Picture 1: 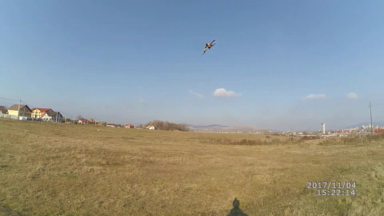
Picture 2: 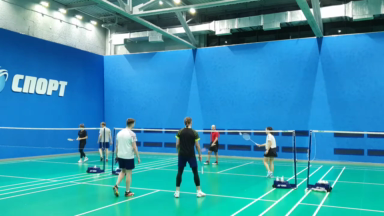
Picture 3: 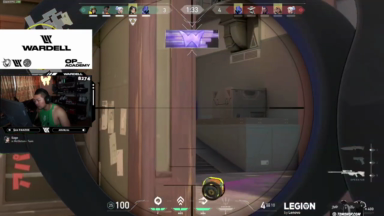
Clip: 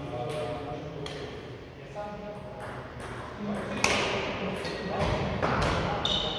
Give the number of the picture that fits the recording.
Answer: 2